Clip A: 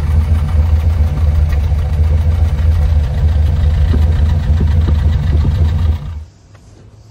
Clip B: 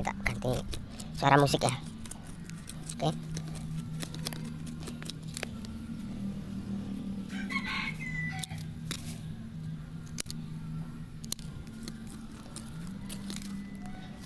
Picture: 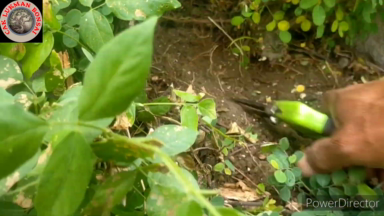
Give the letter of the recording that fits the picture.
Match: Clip B